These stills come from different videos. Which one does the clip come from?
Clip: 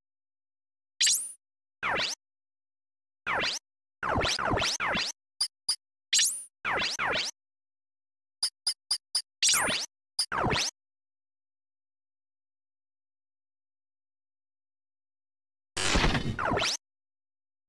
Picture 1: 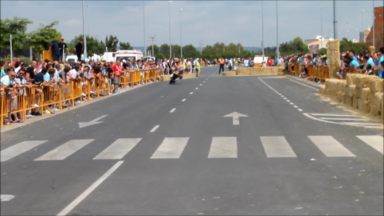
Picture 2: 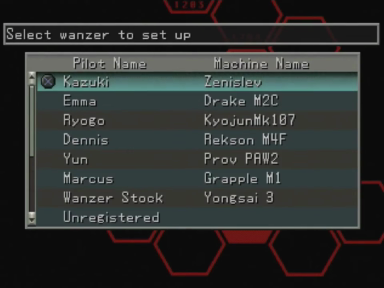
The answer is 2